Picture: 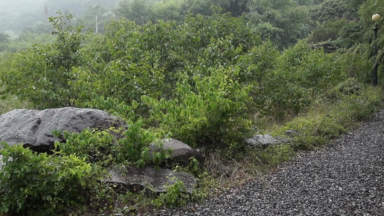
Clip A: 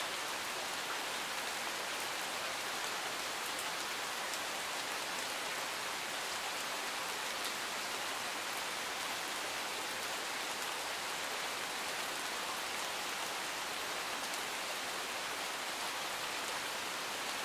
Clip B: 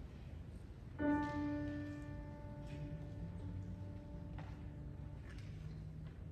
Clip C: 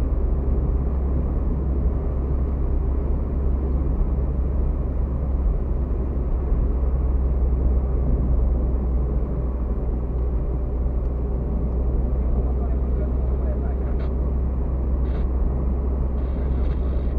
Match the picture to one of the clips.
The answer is A